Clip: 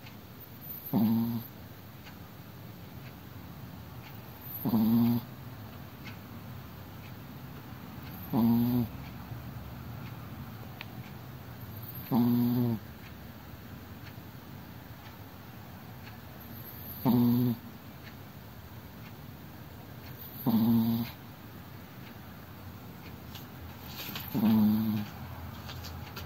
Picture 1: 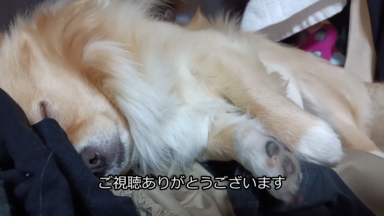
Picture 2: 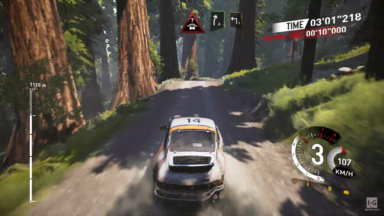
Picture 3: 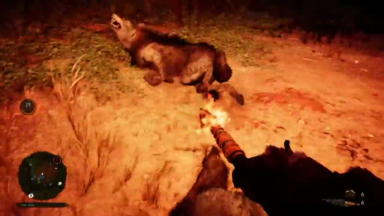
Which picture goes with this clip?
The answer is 1